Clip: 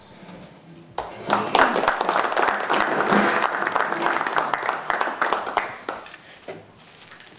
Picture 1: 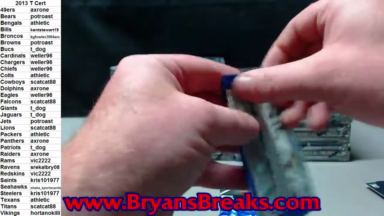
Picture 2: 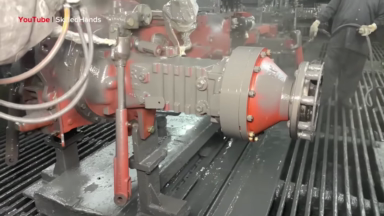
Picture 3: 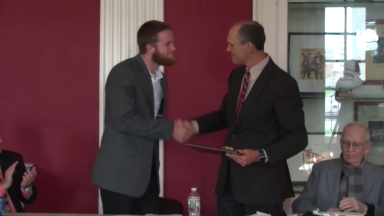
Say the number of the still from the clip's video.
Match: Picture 3